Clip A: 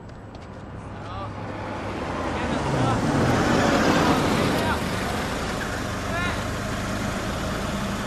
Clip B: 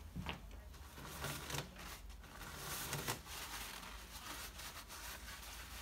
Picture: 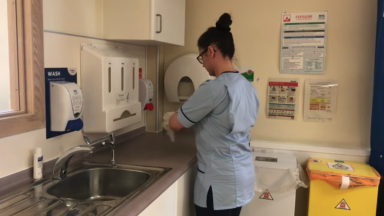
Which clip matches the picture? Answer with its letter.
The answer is B